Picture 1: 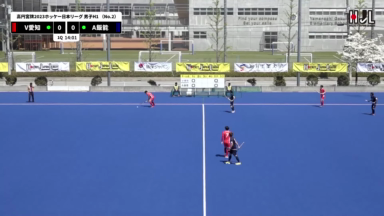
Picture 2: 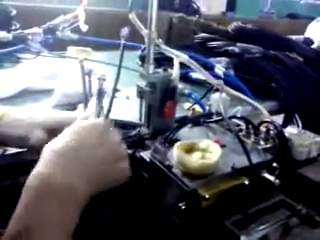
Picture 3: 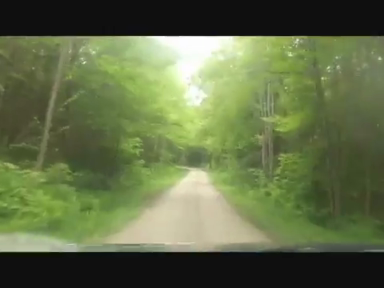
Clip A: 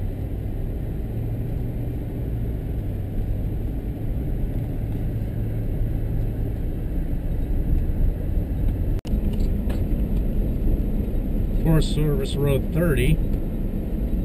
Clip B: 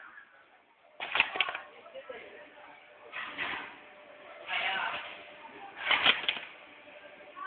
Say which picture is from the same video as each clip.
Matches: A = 3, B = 2